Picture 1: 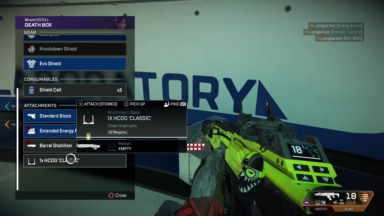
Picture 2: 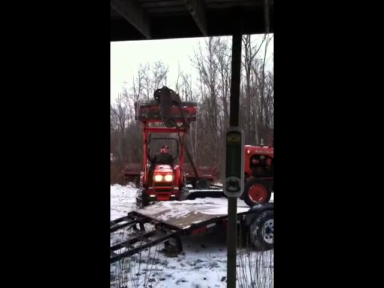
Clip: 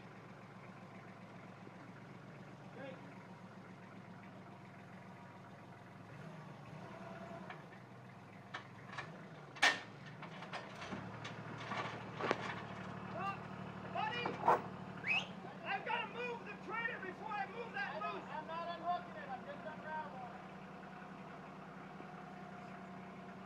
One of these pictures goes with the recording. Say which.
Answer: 2